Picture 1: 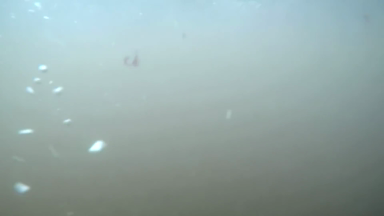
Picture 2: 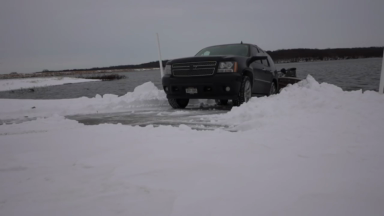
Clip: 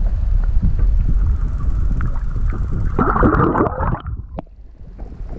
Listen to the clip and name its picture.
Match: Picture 1